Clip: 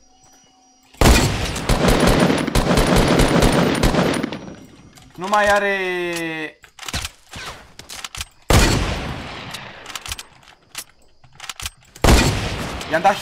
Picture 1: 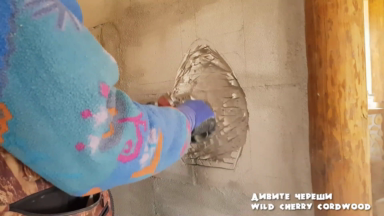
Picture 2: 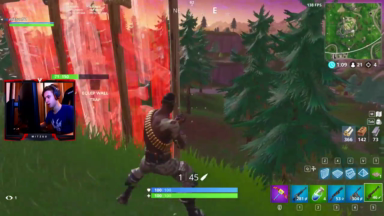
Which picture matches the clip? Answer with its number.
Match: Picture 2